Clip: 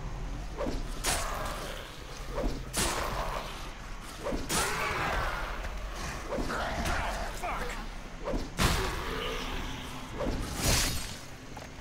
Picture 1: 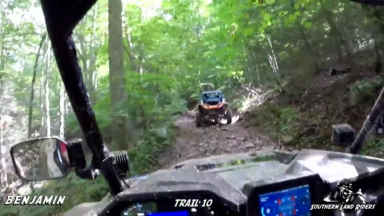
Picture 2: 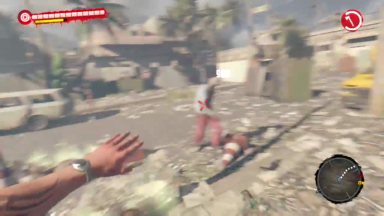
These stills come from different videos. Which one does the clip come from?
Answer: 2